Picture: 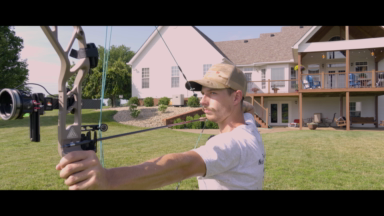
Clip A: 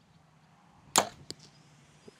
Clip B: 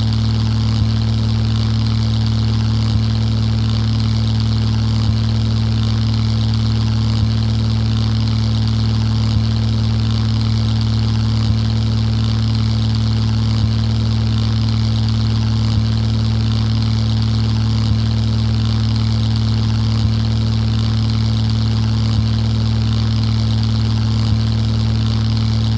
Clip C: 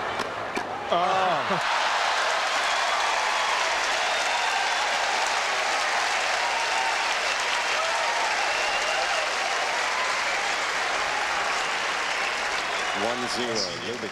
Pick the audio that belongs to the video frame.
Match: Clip A